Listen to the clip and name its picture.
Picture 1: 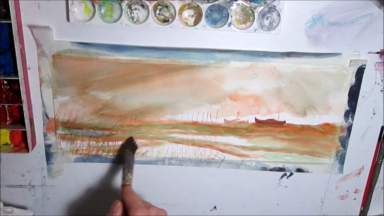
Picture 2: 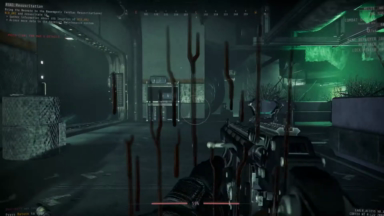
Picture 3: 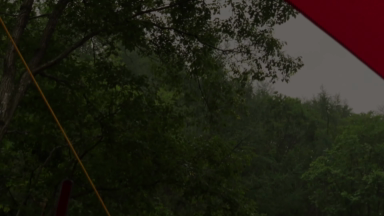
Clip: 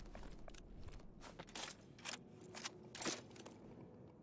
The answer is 2